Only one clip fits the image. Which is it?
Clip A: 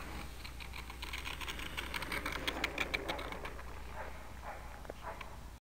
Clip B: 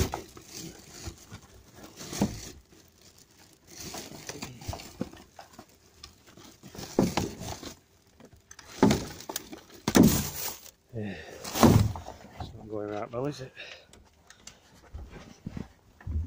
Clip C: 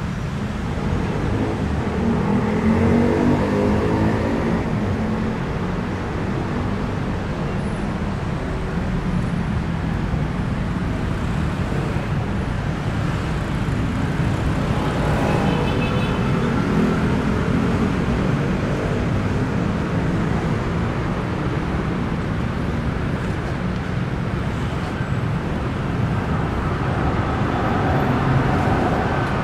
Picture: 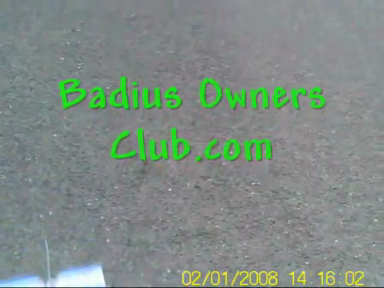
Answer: A